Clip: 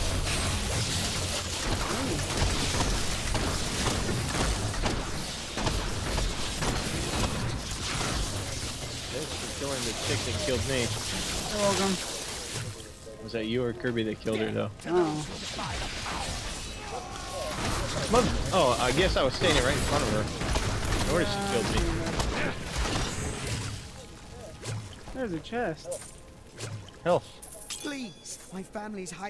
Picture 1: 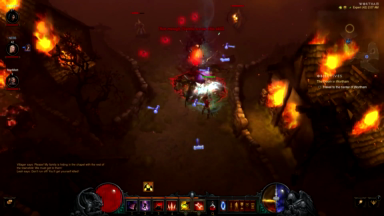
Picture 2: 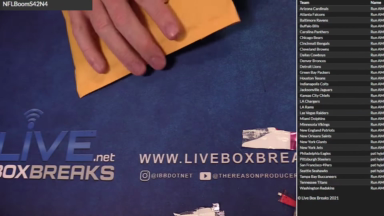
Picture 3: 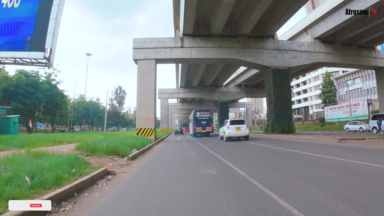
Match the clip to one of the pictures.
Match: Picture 1